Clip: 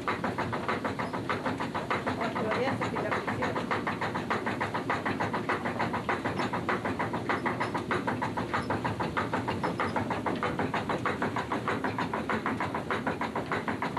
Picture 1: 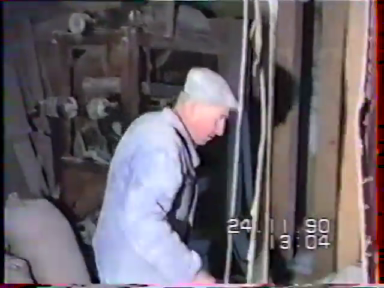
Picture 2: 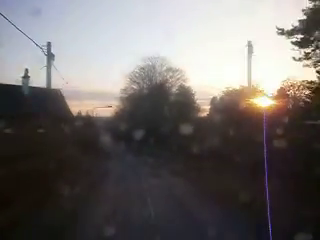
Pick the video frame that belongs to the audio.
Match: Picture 1